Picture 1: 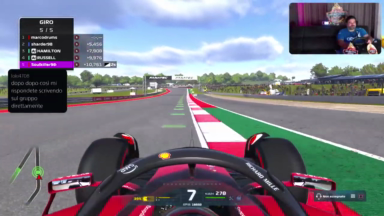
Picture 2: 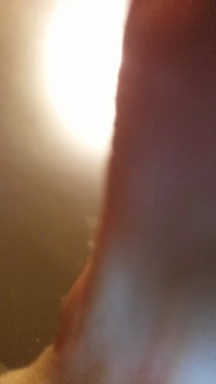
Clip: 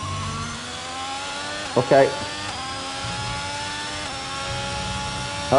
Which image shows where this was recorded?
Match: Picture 1